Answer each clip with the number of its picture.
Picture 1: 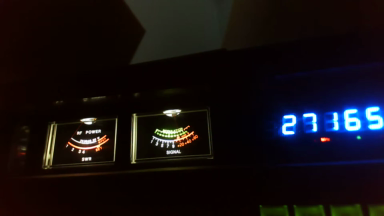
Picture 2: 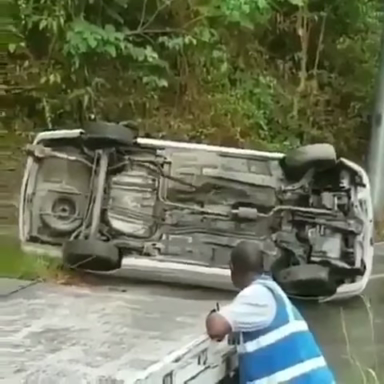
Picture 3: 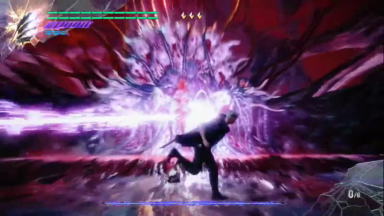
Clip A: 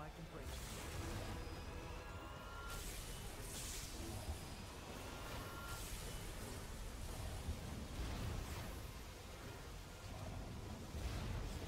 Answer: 3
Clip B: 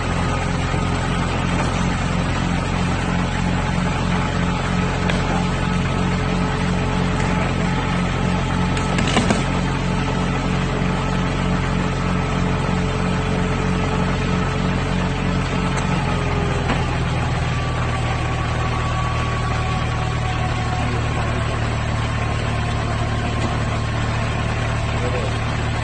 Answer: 2